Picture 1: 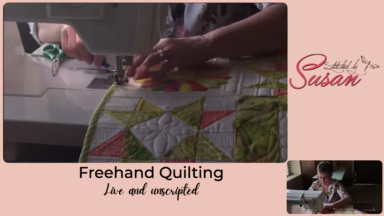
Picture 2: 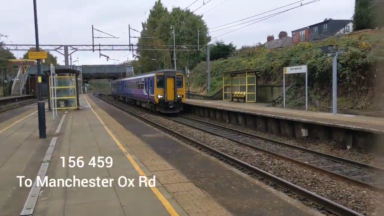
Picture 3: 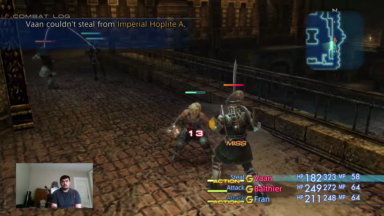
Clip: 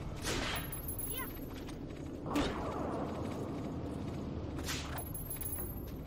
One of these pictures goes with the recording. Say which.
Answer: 3